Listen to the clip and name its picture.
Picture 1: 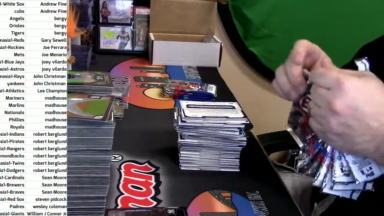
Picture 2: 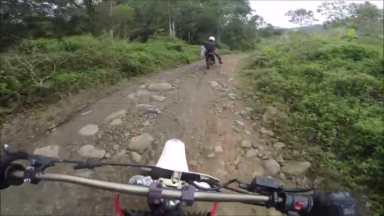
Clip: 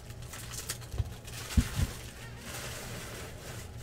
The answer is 1